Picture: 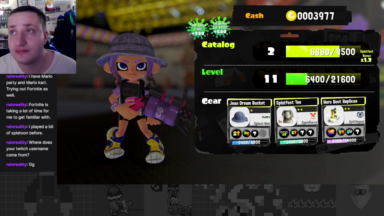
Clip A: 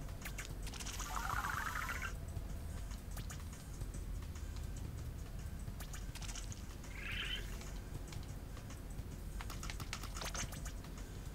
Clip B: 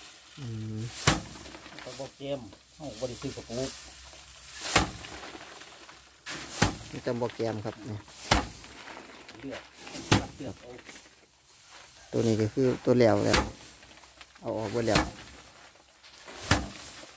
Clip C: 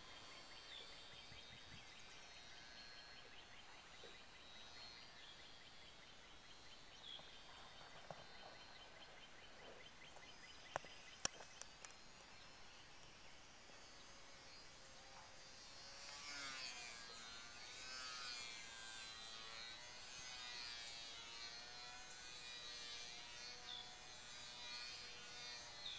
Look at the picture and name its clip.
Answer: A